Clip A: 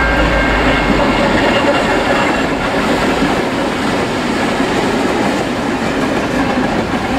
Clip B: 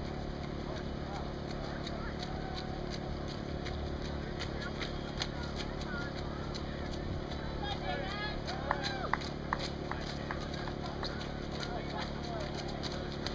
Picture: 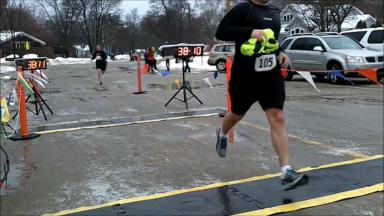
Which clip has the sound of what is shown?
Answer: B